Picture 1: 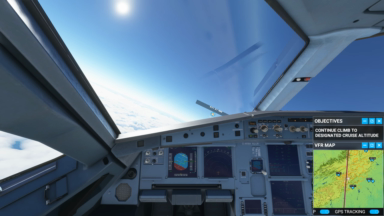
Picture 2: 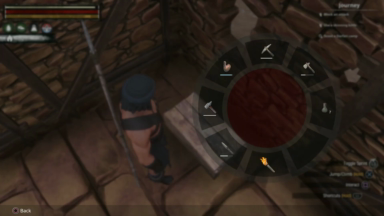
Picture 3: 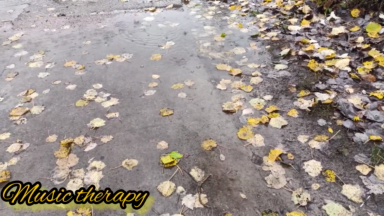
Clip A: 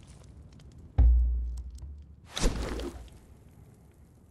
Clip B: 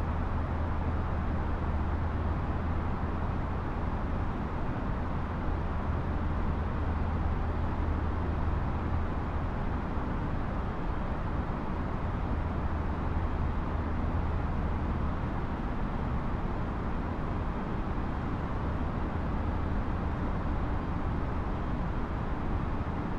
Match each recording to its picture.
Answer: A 2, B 1